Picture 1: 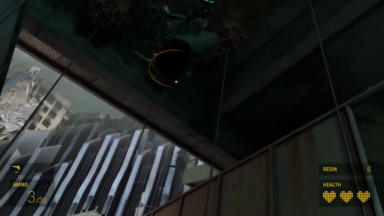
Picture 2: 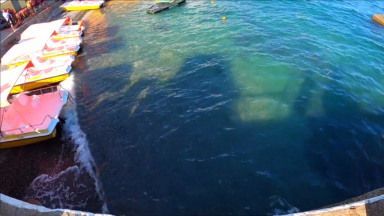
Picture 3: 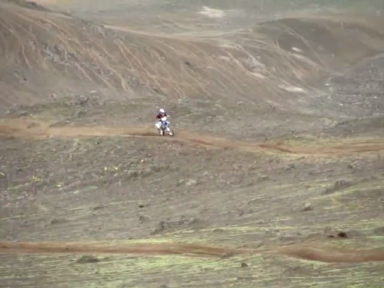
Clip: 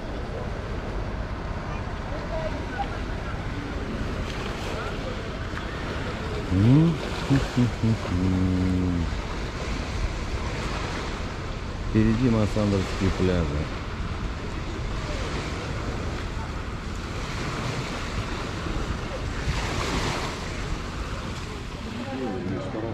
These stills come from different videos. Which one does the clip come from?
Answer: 2